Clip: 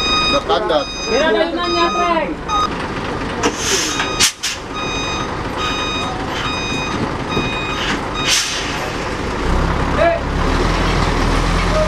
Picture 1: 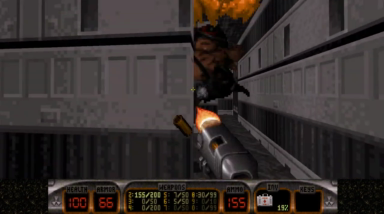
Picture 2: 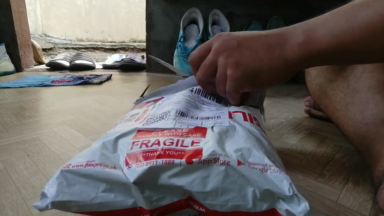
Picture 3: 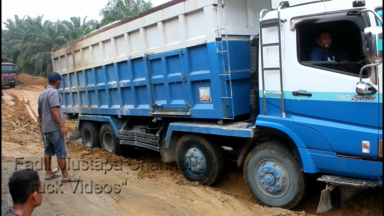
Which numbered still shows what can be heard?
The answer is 3